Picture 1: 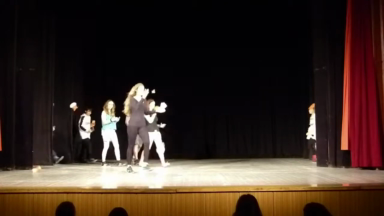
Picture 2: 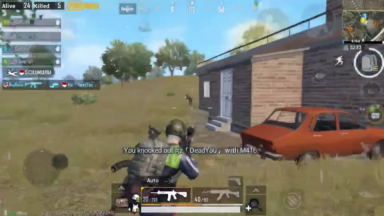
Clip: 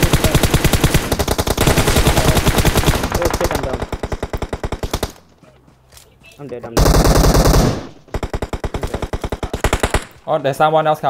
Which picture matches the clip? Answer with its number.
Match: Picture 2